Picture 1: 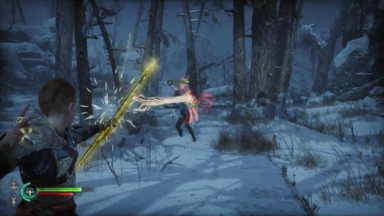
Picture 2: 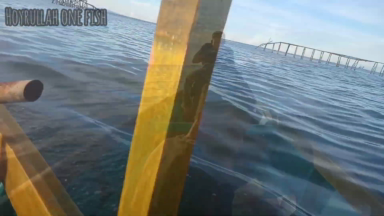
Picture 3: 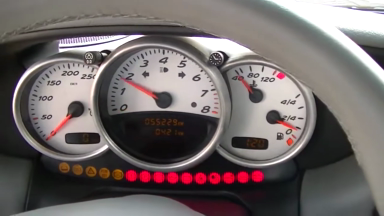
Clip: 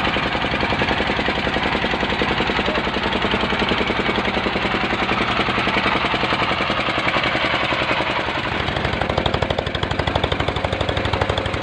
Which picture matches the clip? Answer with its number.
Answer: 2